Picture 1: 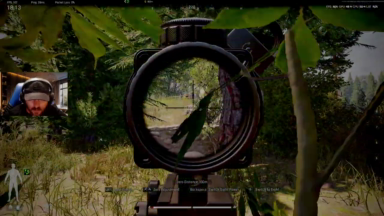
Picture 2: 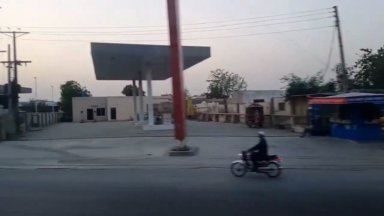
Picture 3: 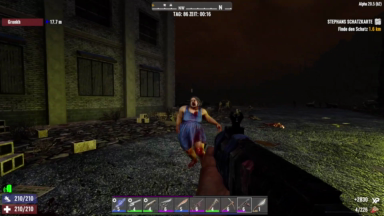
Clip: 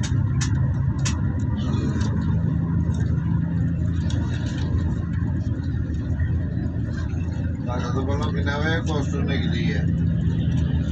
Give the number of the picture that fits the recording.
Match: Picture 2